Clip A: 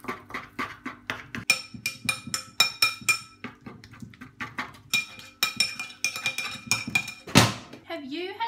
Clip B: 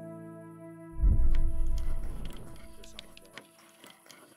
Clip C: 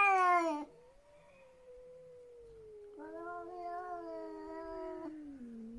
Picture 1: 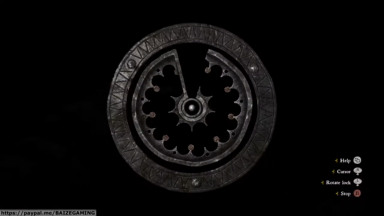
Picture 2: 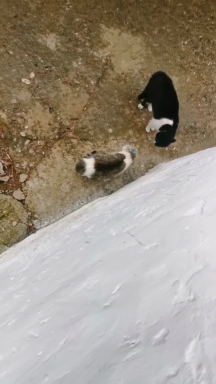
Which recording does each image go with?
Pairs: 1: B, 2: C